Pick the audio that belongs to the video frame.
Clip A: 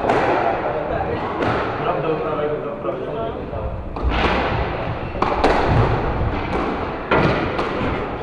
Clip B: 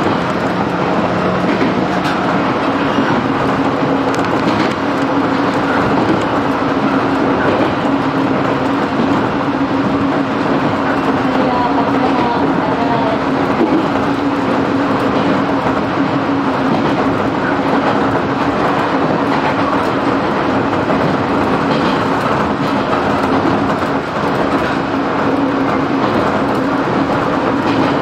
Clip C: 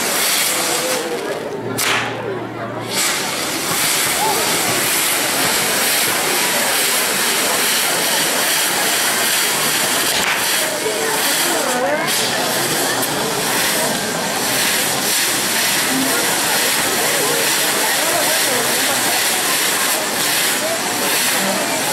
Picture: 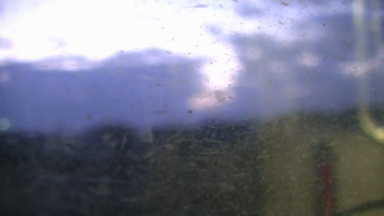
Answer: B